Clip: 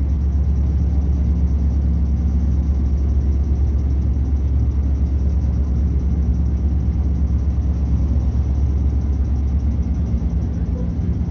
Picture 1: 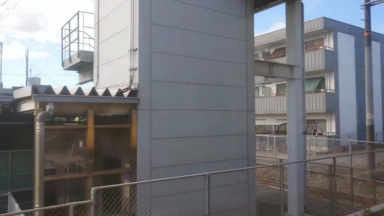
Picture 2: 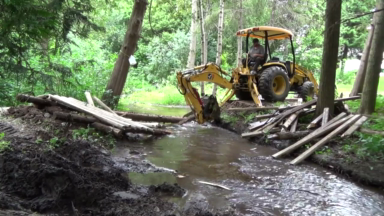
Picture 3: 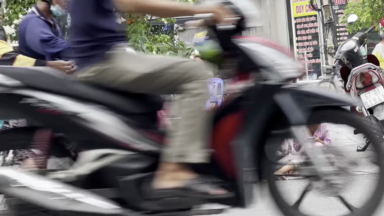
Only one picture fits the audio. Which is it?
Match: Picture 1